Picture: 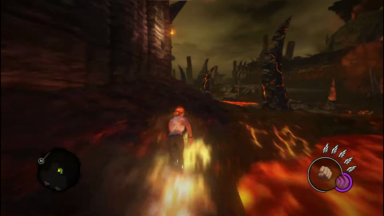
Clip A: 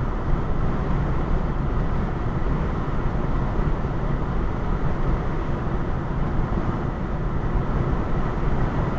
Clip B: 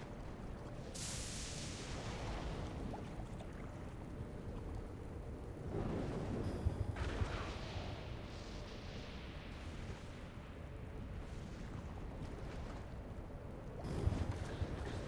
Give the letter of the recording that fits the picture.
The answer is B